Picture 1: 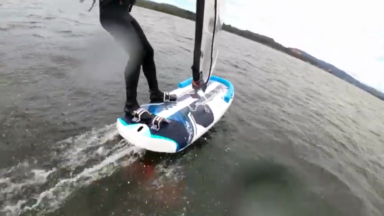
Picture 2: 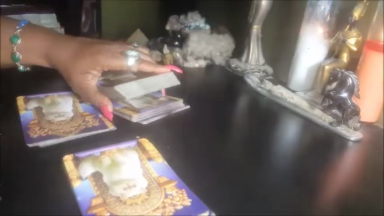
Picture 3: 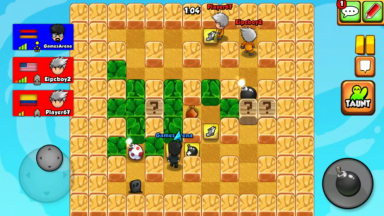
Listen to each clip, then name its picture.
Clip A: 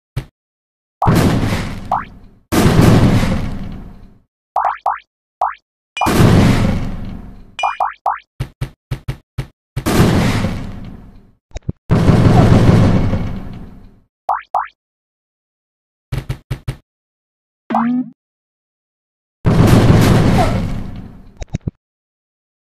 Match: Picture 3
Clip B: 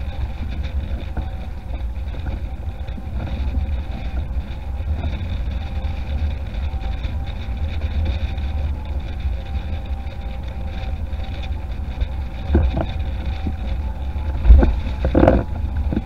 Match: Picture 1